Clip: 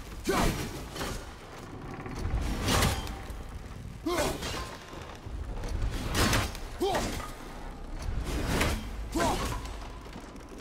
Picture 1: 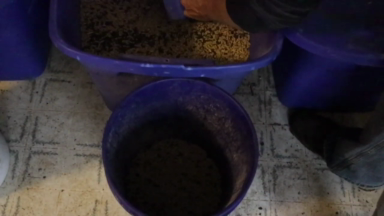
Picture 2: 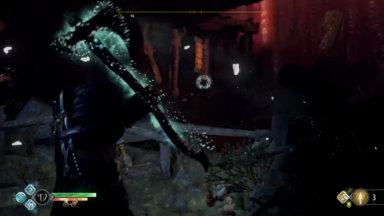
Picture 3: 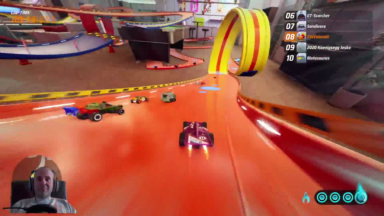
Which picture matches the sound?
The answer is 2